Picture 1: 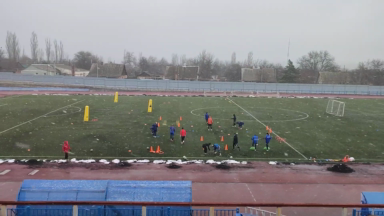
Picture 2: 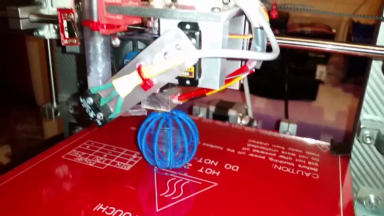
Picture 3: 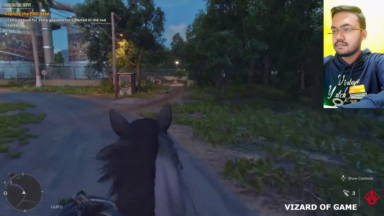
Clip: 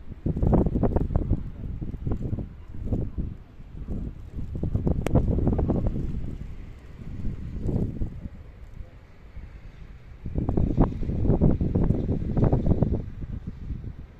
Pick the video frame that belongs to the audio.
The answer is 1